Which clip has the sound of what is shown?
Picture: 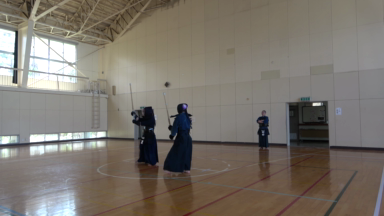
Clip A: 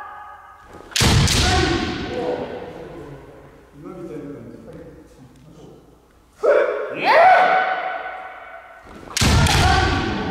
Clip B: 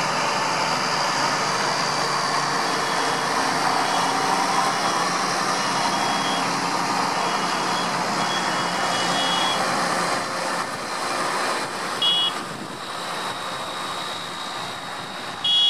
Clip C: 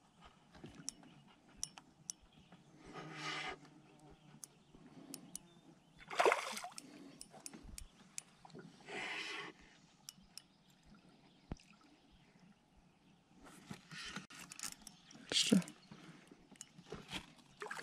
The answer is A